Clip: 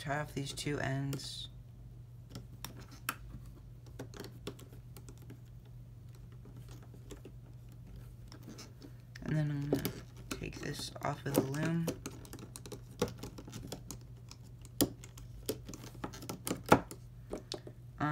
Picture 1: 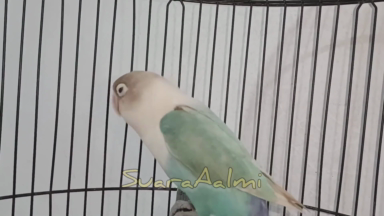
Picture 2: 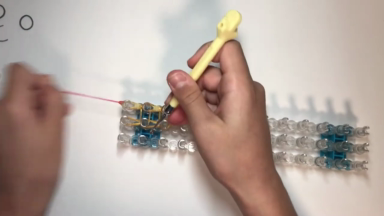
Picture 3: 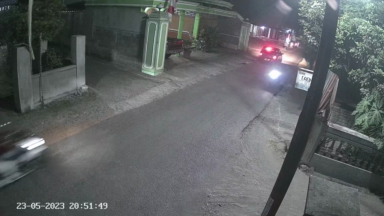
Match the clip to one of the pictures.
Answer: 2